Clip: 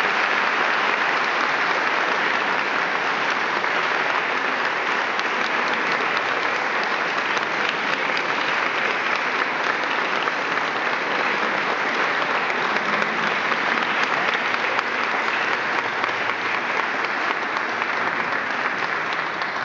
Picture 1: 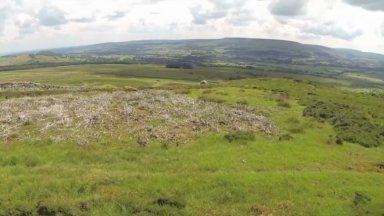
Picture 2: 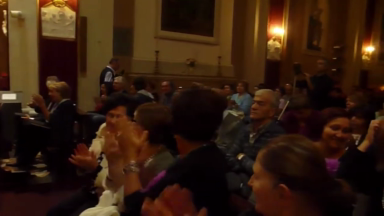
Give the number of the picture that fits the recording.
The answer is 2